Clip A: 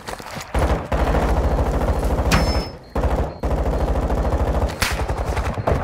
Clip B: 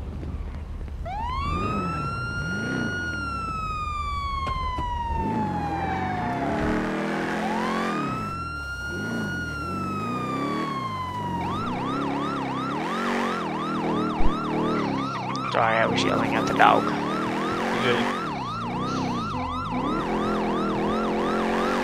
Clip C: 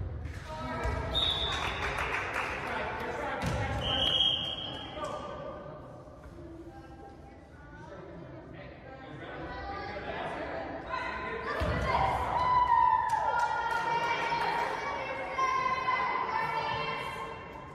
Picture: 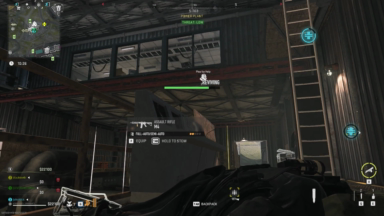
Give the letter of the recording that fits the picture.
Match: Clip A